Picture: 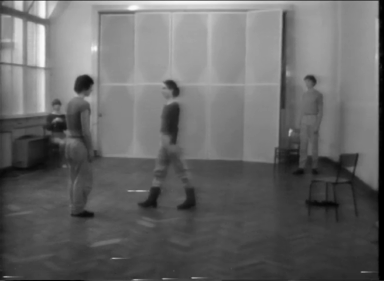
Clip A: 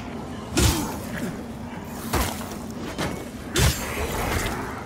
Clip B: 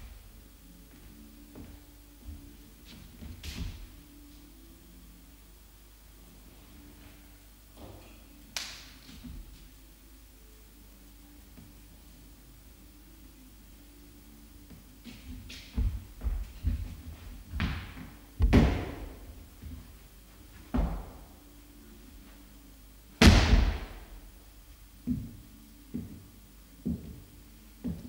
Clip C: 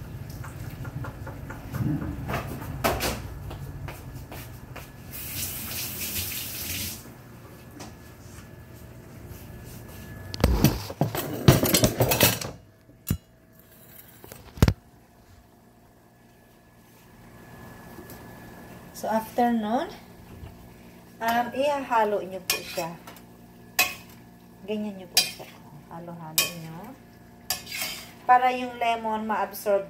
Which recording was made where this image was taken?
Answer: B